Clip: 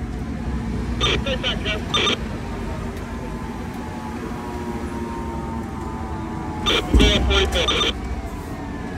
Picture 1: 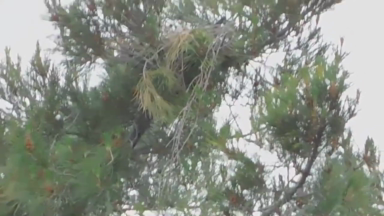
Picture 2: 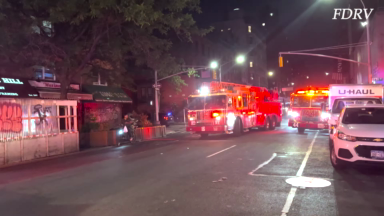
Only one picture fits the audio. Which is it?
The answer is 2